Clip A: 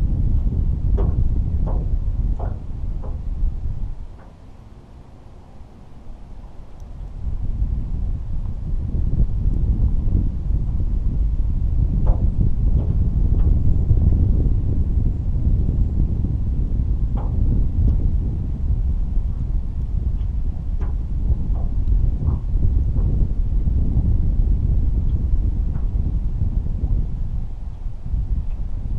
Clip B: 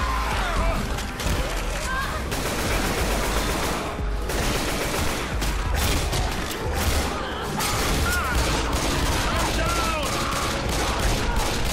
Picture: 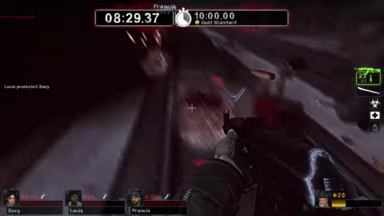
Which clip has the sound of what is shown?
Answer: B